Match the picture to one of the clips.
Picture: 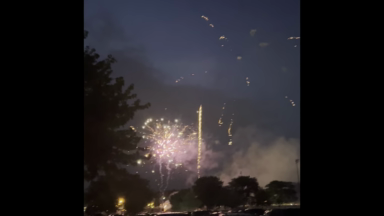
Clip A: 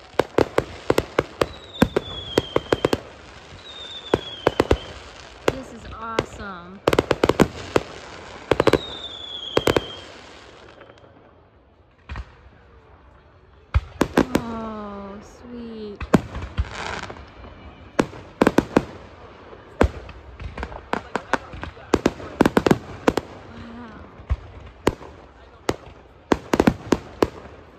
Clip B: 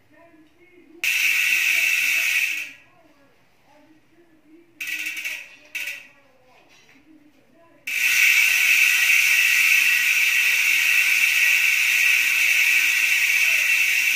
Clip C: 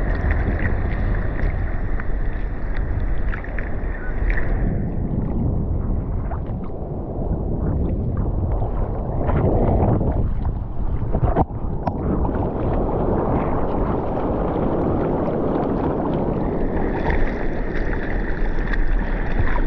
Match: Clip A